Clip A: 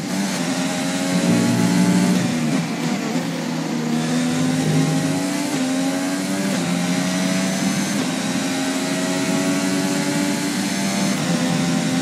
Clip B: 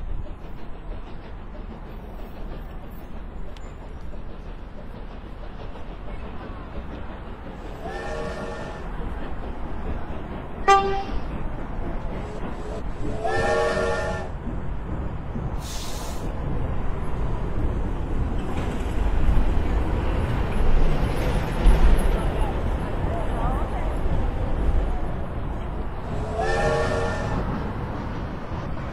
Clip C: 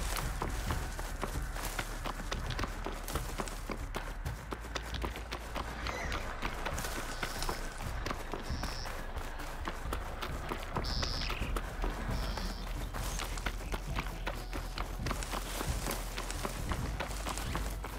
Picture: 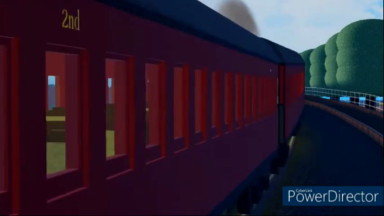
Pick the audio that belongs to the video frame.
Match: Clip B